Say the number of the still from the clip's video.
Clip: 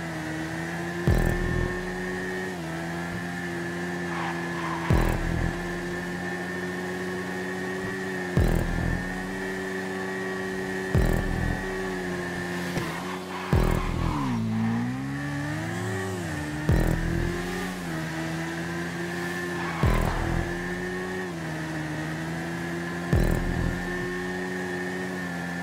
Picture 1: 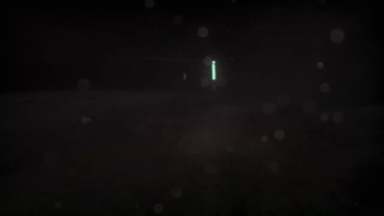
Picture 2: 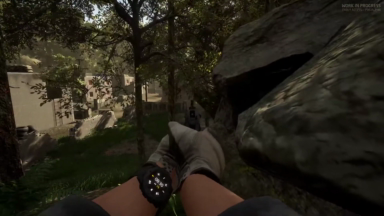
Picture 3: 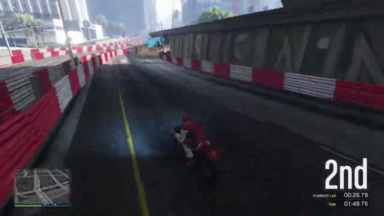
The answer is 3